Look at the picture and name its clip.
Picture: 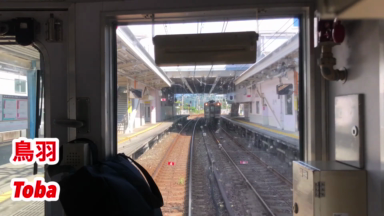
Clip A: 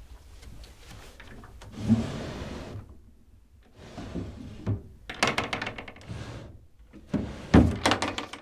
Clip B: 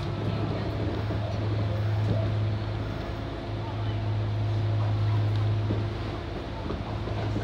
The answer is B